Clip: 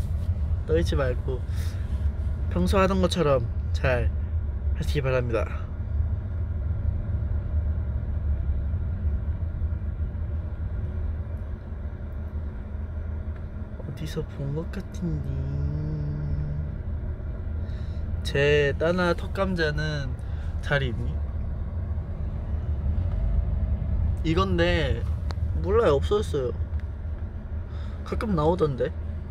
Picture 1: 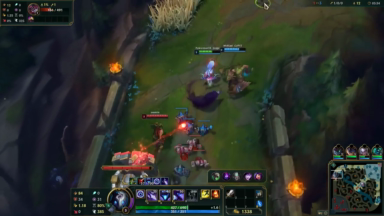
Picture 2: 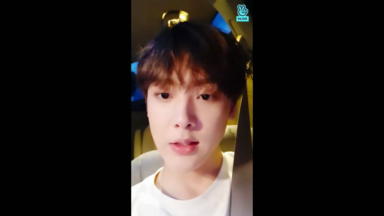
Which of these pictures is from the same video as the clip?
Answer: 2